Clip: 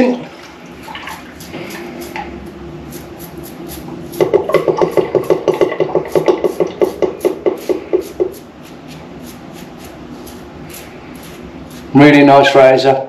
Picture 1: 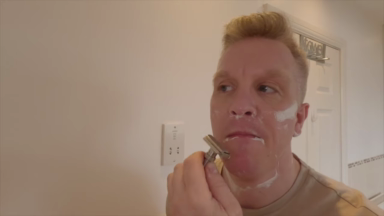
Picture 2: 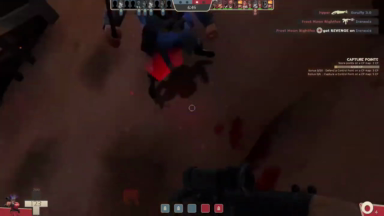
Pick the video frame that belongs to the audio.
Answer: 1